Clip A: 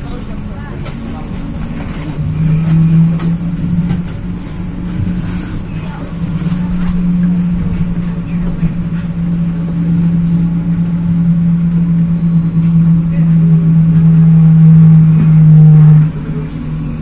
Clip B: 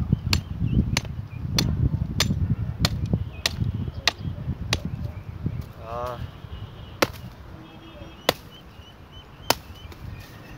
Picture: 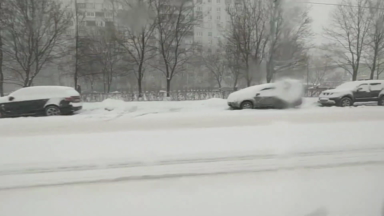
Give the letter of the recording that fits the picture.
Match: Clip A